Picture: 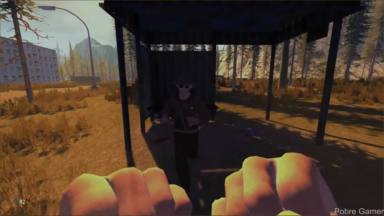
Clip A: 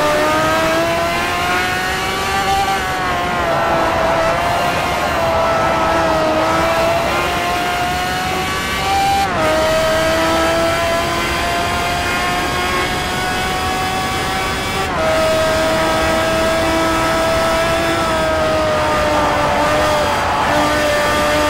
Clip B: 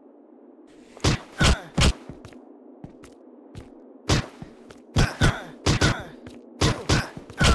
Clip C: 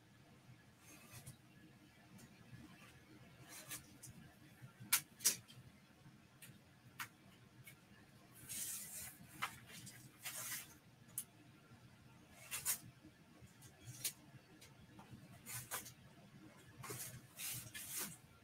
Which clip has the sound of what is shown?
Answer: B